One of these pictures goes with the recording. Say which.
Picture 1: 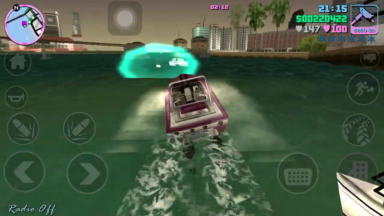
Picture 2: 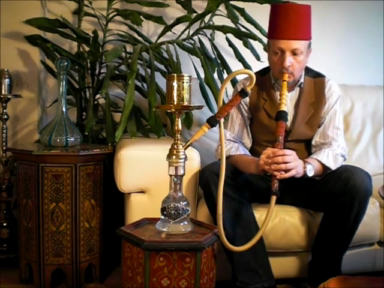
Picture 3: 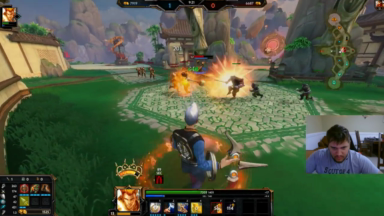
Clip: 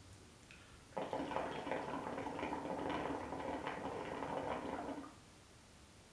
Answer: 2